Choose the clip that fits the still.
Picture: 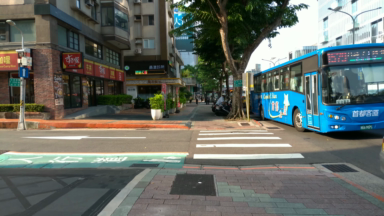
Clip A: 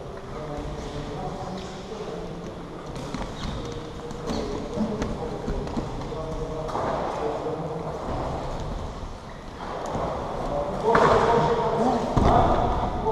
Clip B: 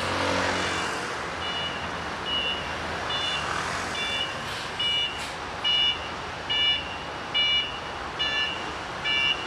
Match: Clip B